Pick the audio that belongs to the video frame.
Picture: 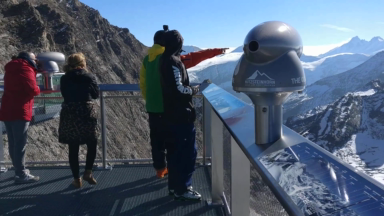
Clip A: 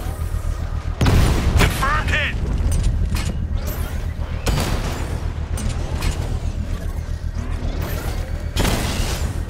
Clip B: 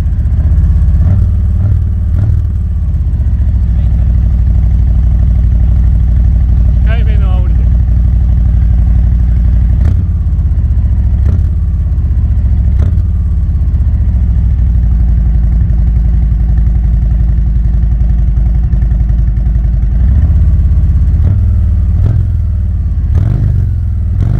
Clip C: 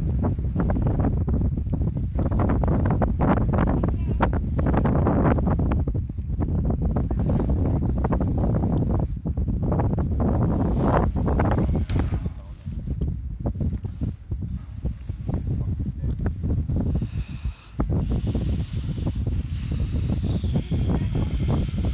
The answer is C